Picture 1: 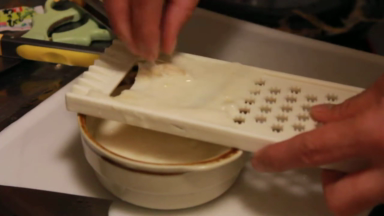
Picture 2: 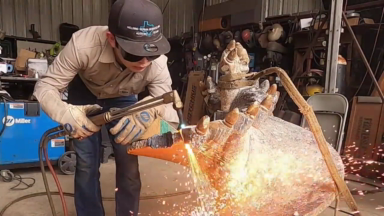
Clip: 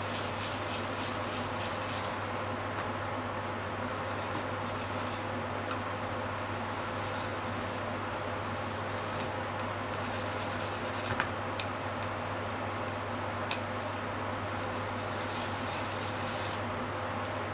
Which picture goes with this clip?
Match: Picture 1